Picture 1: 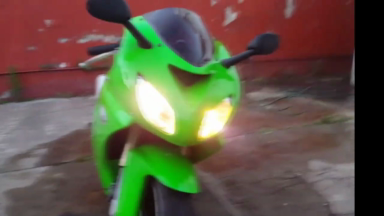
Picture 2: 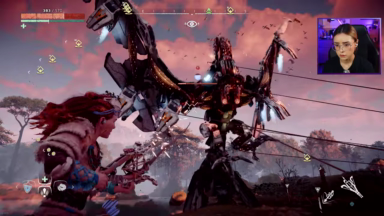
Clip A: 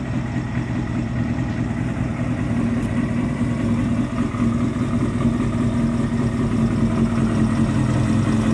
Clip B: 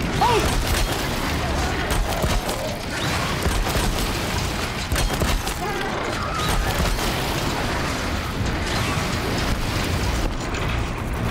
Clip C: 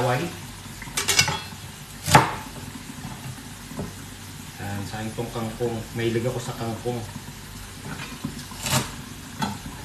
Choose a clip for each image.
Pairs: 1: A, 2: B